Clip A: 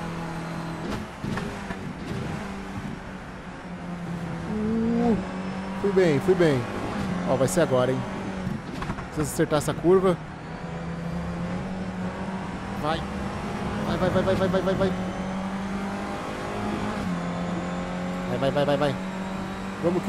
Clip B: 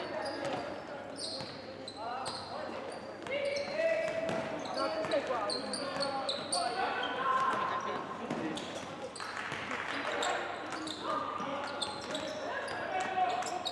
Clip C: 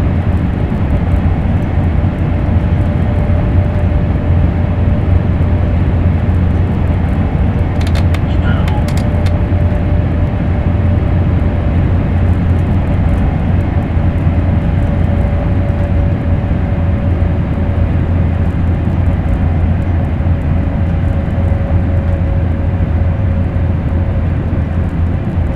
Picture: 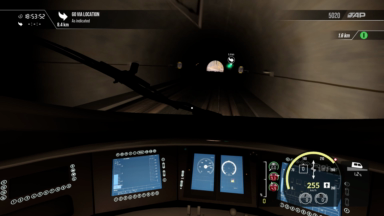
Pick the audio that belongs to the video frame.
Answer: C